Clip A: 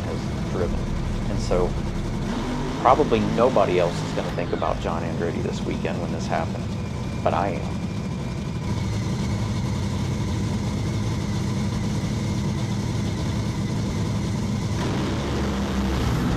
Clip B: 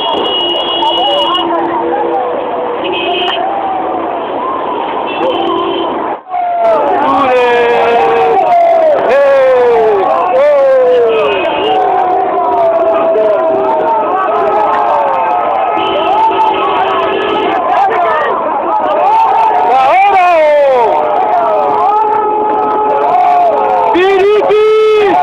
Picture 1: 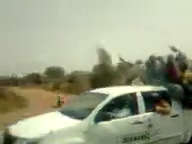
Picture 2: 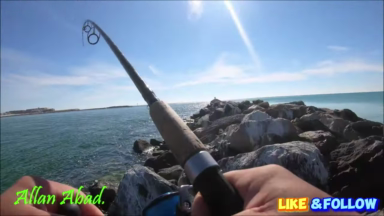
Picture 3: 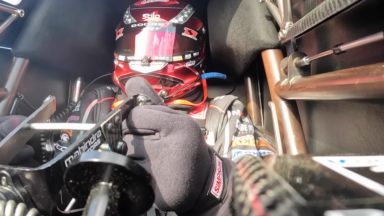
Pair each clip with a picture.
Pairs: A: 3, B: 1